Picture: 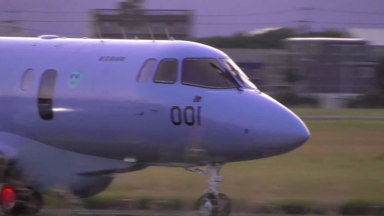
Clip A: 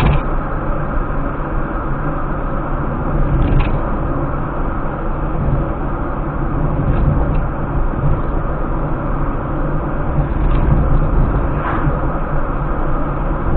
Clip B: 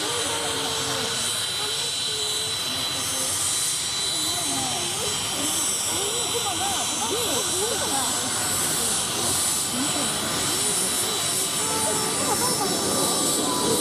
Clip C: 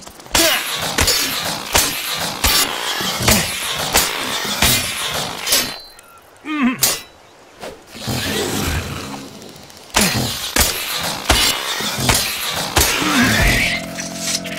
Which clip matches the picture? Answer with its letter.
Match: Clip B